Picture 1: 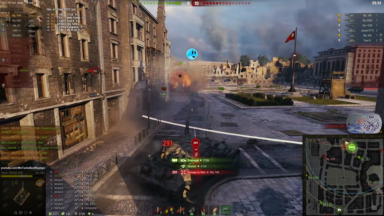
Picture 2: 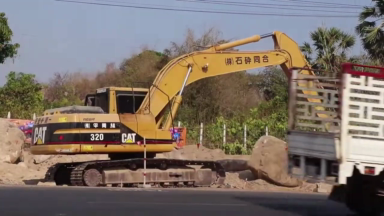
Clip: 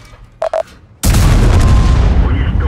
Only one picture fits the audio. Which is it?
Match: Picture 1